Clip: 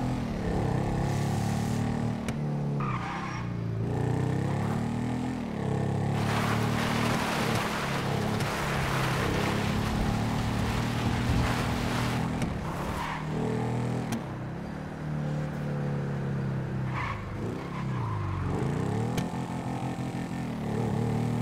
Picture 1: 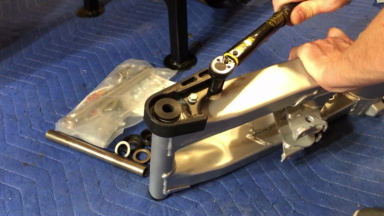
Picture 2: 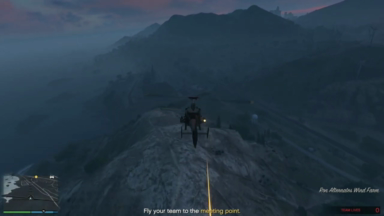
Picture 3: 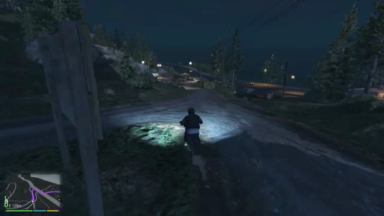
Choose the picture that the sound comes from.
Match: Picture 3